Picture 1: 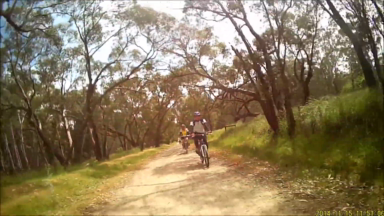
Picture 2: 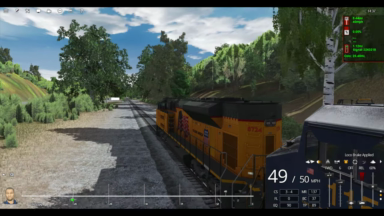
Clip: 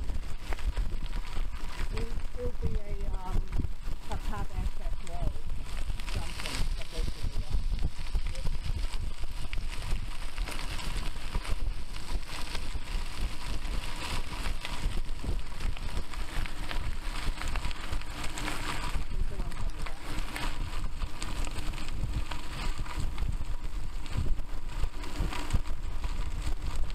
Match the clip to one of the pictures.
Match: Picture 1